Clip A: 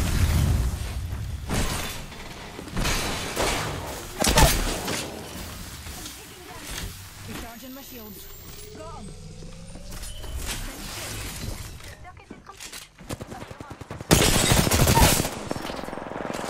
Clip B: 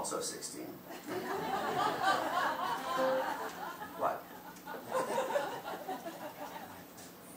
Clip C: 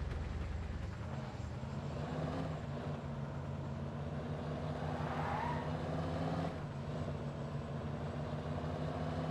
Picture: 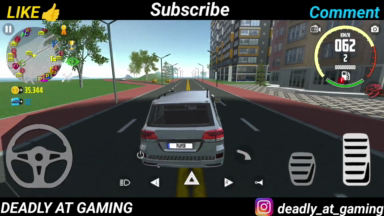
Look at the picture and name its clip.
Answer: C